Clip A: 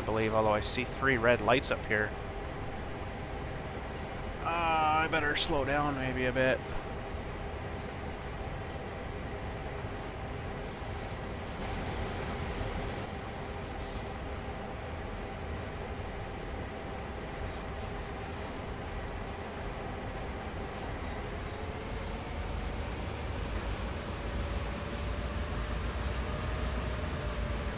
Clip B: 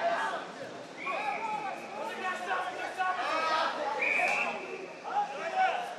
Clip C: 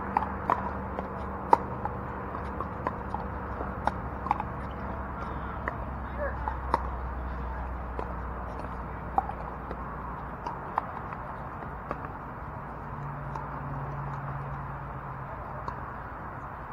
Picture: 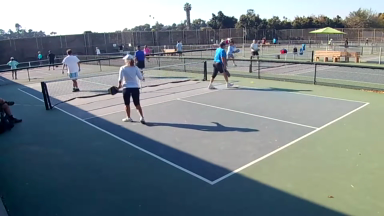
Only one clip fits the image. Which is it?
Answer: C